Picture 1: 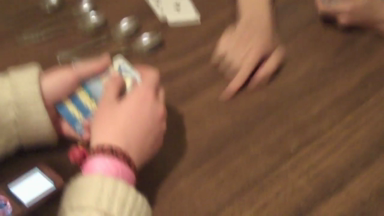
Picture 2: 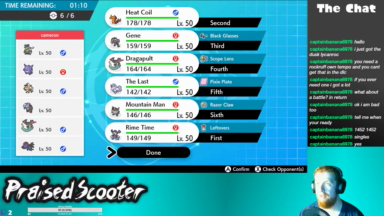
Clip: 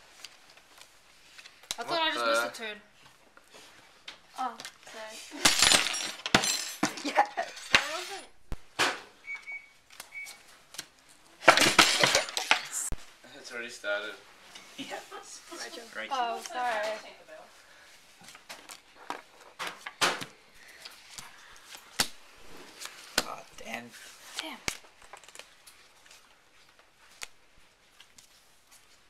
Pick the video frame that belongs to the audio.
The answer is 1